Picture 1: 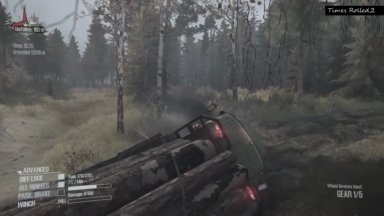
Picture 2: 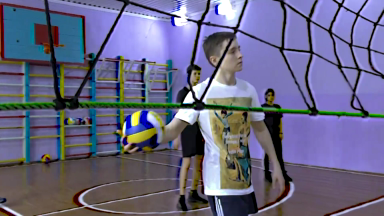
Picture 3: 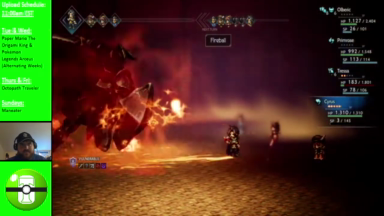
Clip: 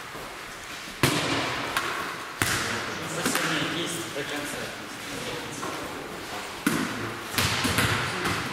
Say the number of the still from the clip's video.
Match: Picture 2